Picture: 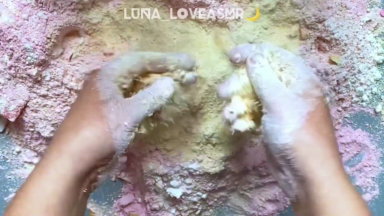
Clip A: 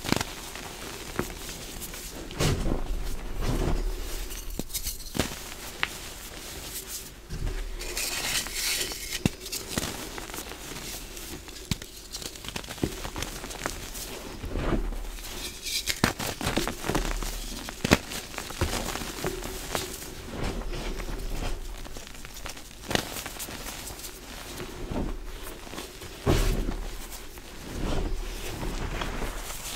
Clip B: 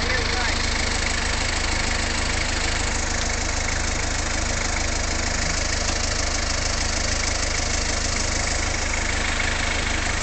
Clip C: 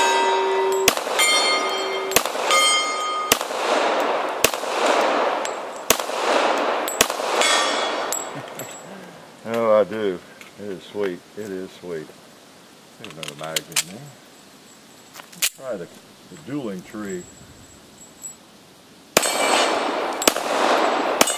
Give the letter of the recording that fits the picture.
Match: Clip A